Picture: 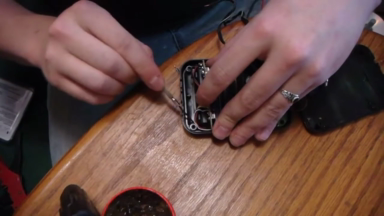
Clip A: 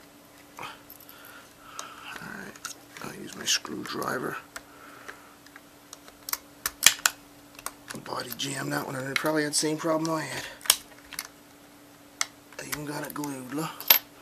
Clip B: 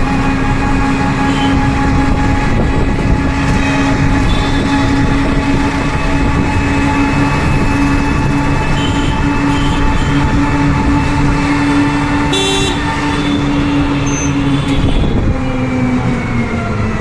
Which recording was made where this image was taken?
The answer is A